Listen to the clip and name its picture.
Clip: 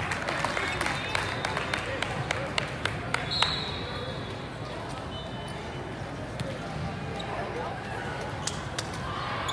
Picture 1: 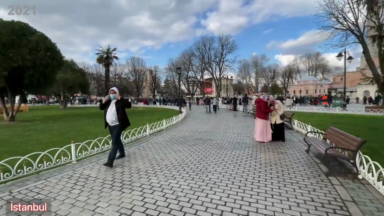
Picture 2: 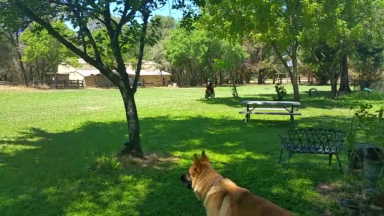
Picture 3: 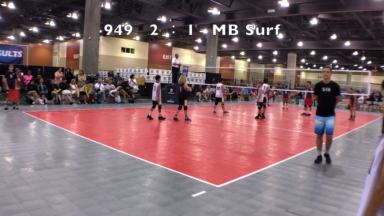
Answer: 3